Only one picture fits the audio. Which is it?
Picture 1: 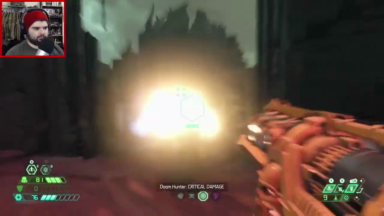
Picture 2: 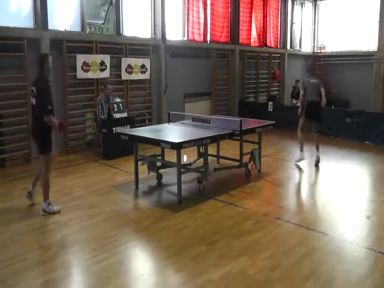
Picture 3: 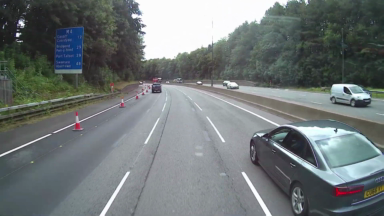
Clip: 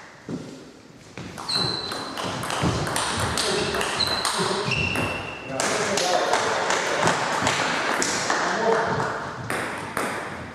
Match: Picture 2